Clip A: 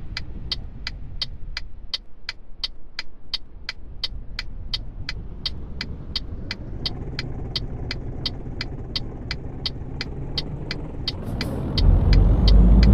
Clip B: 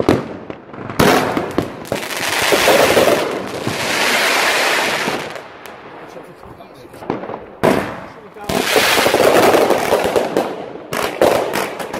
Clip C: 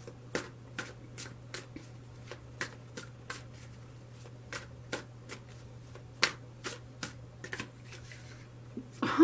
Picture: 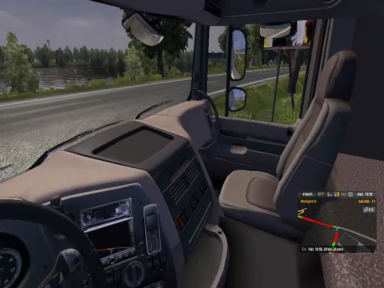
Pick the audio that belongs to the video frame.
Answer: A